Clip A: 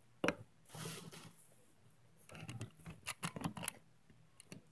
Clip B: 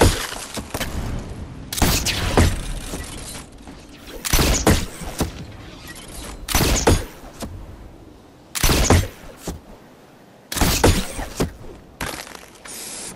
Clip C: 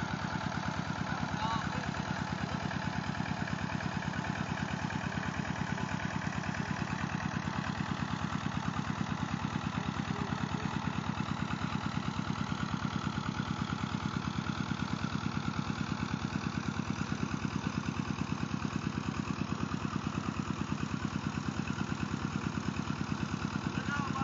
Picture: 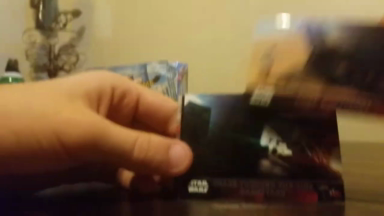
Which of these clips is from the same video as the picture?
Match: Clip A